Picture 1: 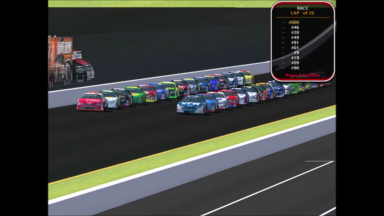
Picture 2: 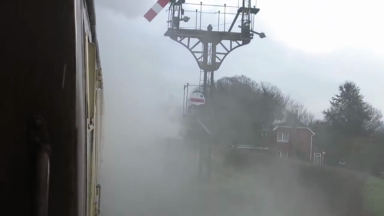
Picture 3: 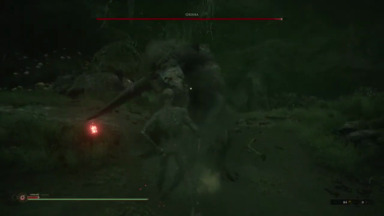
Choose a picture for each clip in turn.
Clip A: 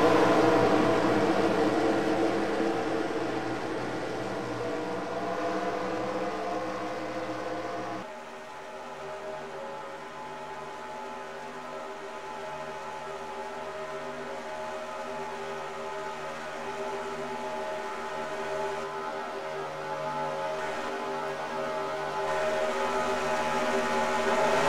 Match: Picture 1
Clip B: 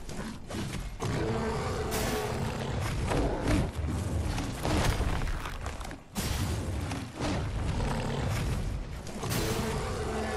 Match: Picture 3